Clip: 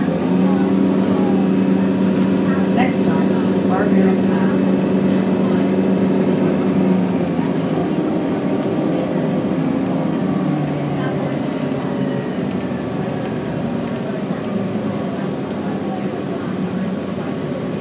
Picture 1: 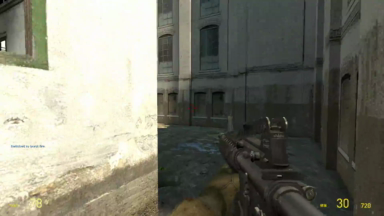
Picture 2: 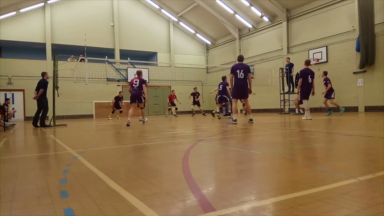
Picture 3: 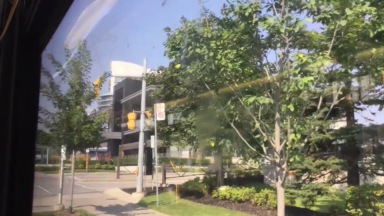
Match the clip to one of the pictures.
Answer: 3